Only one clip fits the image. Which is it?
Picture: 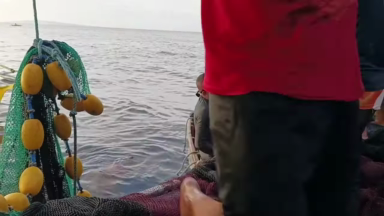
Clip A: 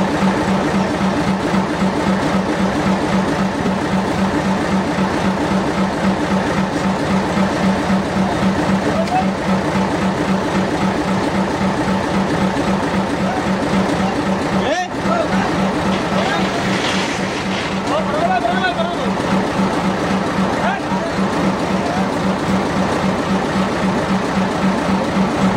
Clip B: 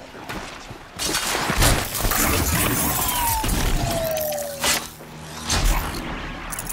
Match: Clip A